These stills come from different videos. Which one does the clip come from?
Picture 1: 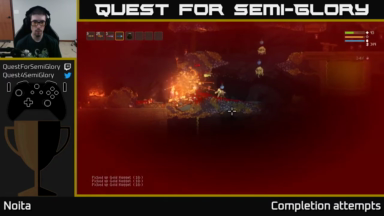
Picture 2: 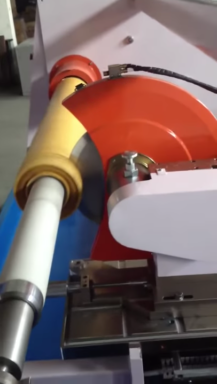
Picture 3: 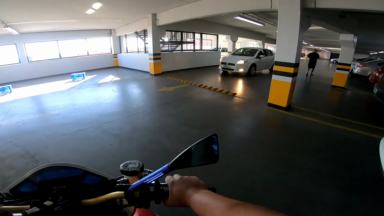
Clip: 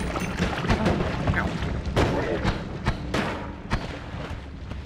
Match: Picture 1